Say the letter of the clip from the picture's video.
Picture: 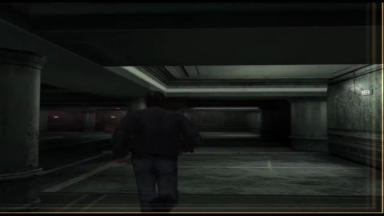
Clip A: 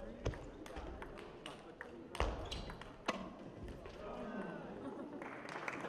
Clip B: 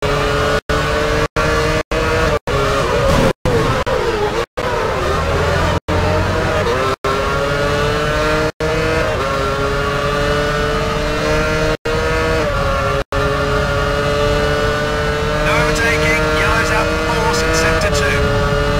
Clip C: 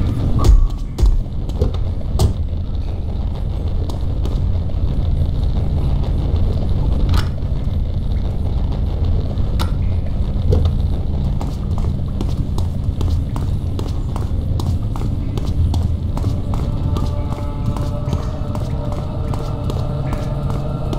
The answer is C